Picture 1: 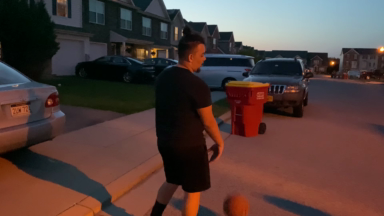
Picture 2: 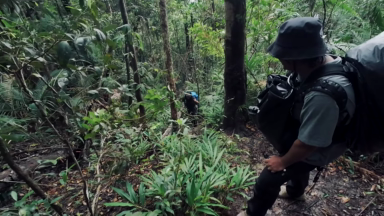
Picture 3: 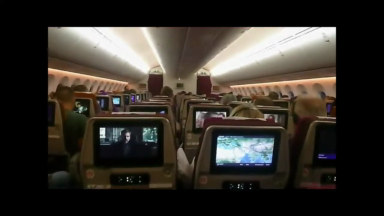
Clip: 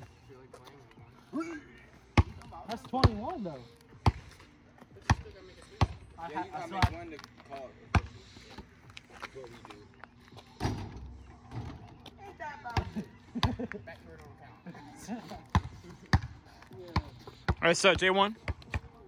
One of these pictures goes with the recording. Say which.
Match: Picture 1